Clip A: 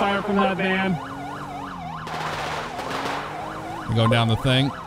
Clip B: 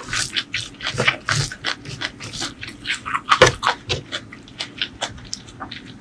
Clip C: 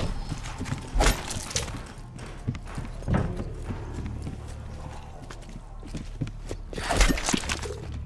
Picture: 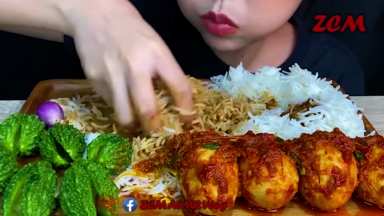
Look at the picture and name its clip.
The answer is B